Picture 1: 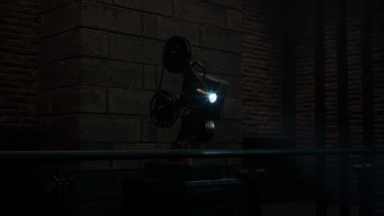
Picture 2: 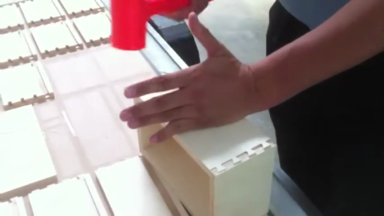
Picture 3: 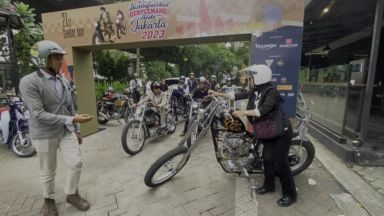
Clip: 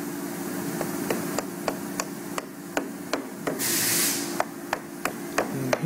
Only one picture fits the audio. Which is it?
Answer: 2